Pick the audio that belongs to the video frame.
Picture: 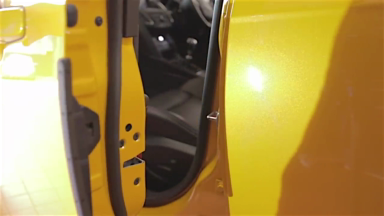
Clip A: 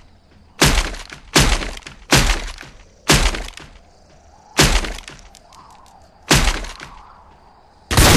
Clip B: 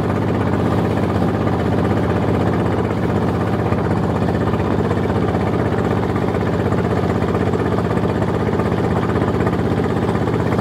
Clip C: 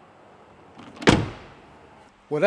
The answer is C